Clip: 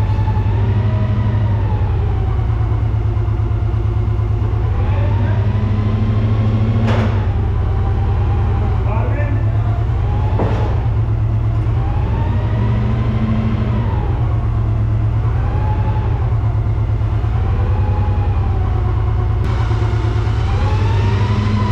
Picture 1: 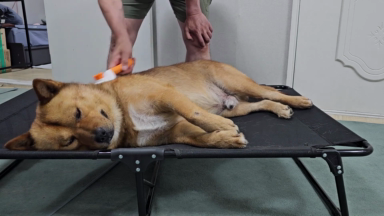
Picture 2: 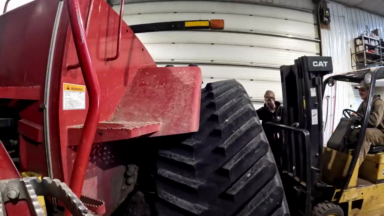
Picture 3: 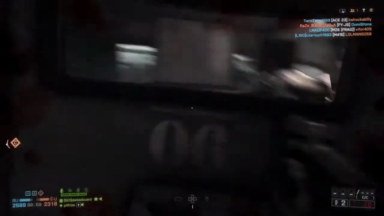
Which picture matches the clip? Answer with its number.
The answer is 2